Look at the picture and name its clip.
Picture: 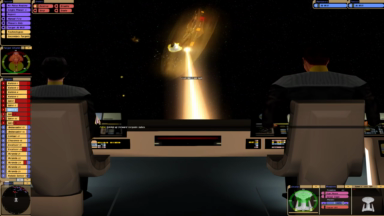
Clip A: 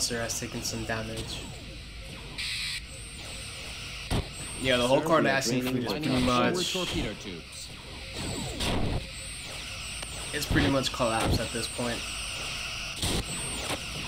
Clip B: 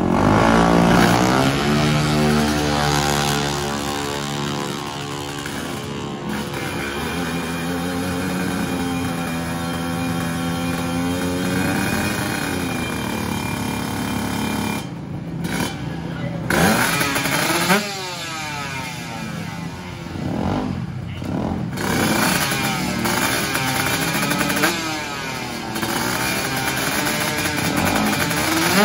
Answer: A